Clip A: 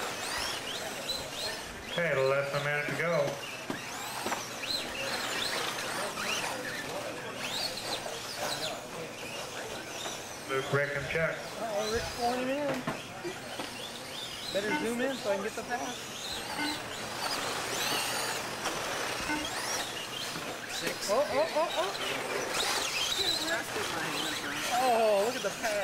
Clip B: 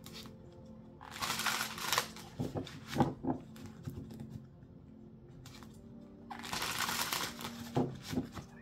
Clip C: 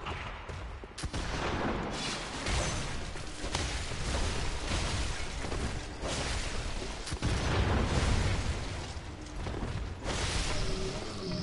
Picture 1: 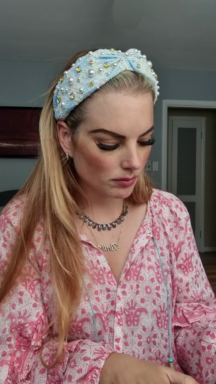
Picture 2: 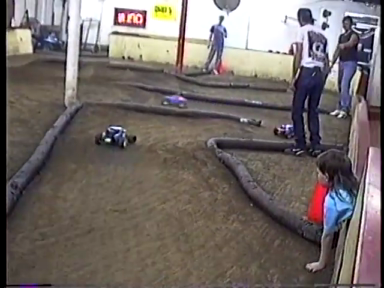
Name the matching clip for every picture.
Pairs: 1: B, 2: A